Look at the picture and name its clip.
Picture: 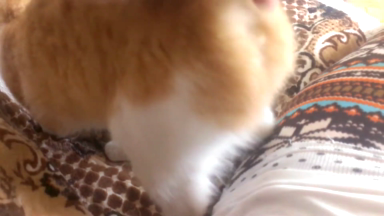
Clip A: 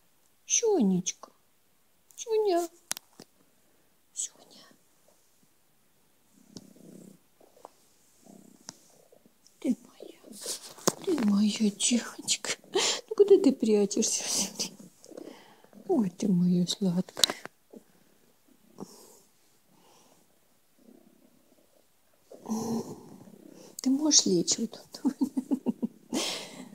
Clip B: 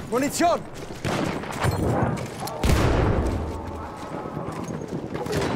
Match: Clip A